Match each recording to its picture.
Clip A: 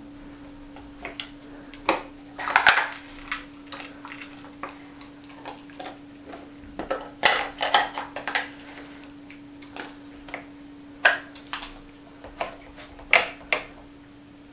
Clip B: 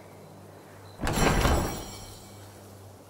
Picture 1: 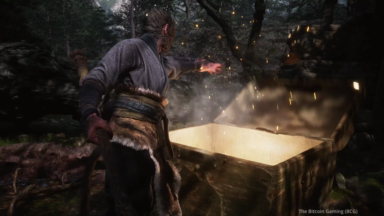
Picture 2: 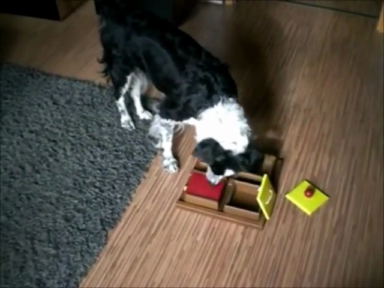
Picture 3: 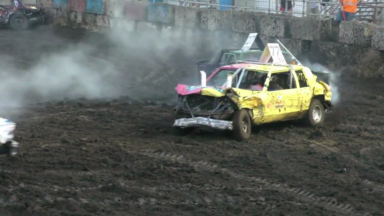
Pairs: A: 2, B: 1